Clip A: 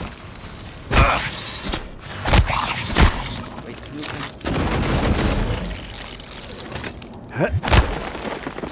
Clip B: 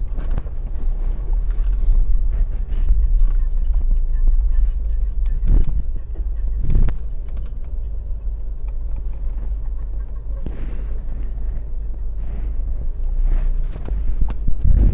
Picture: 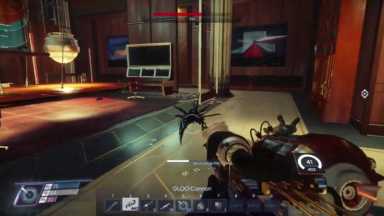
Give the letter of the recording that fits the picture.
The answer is A